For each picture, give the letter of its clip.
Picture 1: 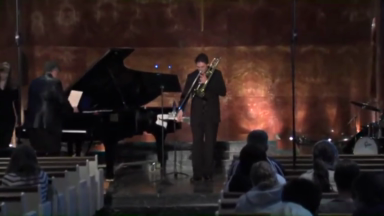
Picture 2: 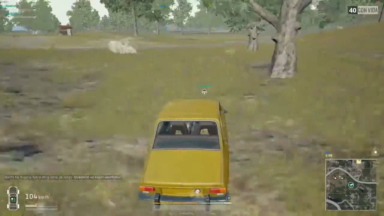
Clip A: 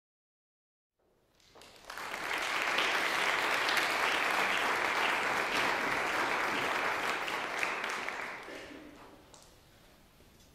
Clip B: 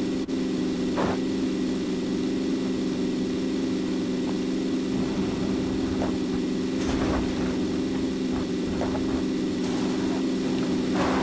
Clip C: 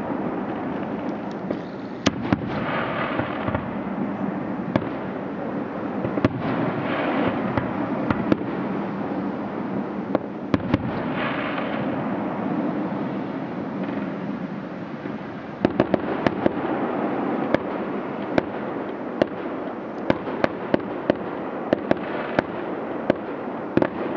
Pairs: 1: A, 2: B